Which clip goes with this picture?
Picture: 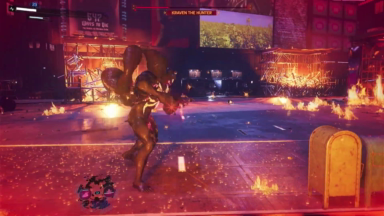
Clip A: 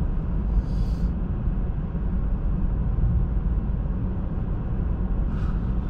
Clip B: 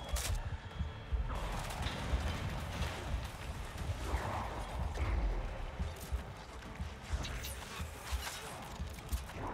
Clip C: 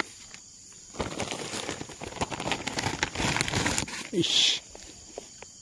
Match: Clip B